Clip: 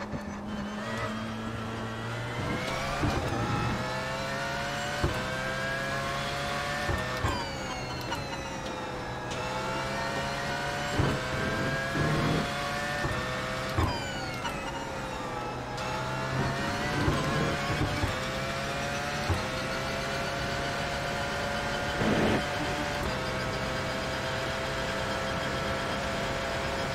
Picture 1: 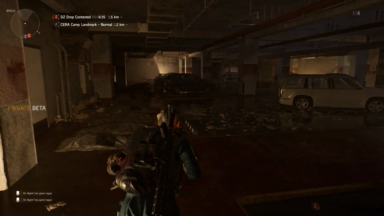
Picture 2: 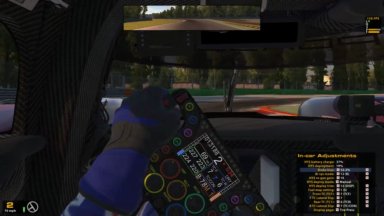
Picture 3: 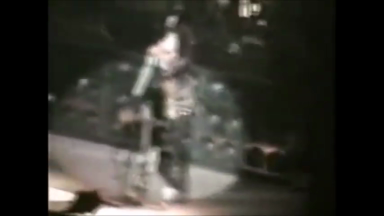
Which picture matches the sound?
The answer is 2